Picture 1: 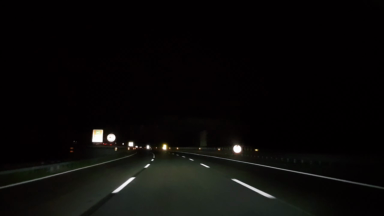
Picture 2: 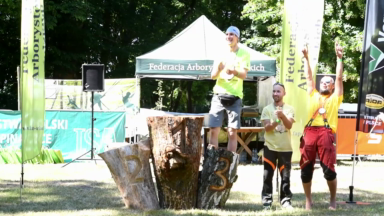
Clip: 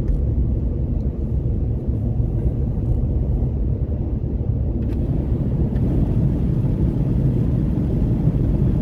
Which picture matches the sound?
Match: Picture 1